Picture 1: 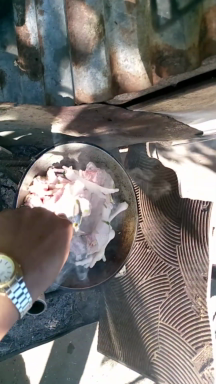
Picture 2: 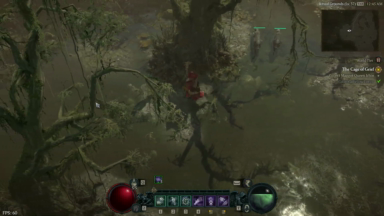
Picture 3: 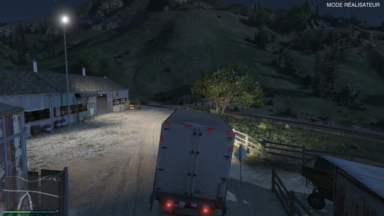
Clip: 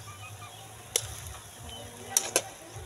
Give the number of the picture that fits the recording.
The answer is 1